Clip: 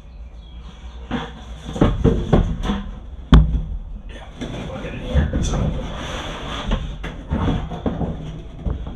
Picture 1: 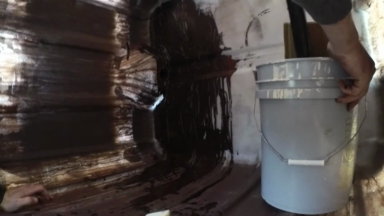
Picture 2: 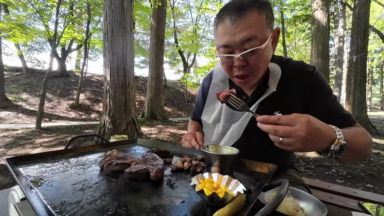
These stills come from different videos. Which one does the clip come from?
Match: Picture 1